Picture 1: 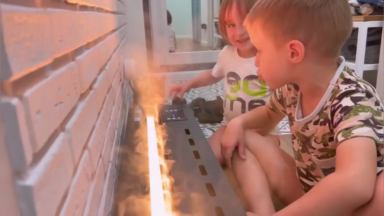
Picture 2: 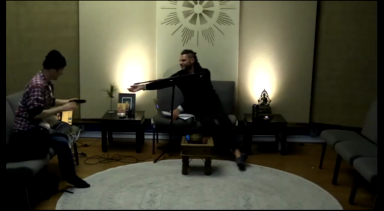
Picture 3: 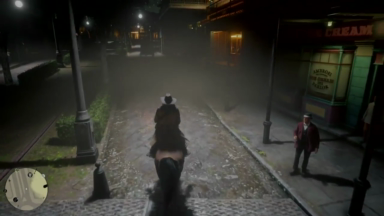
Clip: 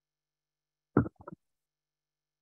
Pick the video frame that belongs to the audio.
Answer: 2